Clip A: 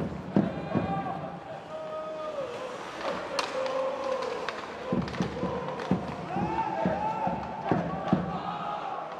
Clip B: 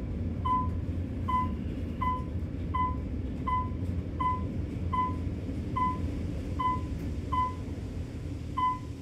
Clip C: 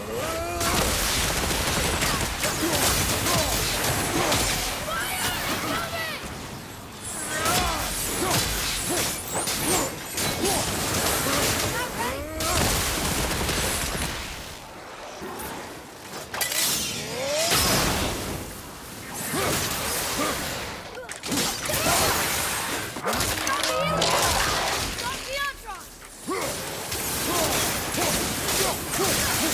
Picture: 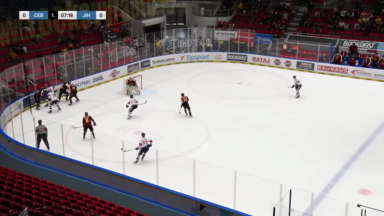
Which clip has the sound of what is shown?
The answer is A